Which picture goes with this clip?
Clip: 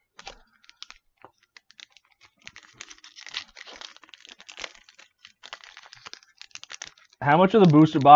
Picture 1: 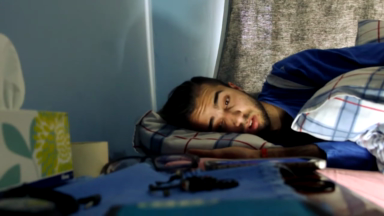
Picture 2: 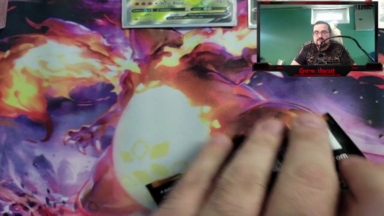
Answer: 2